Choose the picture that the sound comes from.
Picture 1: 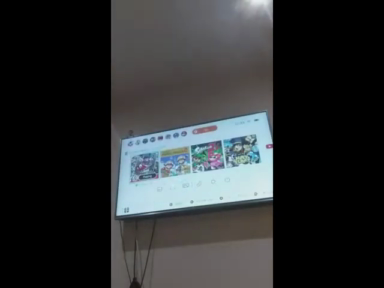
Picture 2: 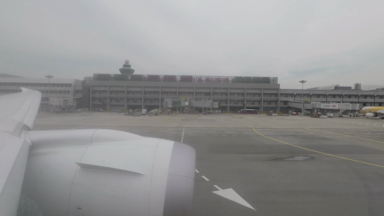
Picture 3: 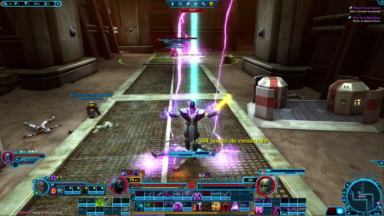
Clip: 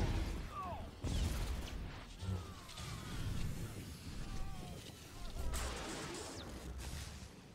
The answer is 3